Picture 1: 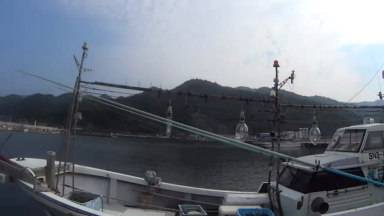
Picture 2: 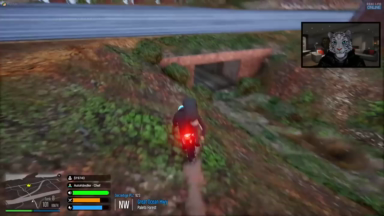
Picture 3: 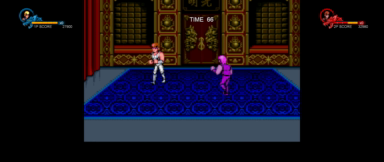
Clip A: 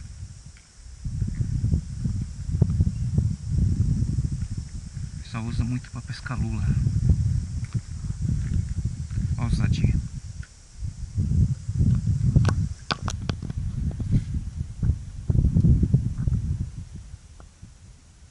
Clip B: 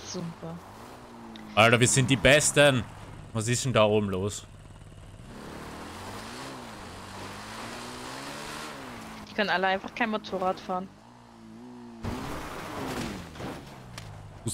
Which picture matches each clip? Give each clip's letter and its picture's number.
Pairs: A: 1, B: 2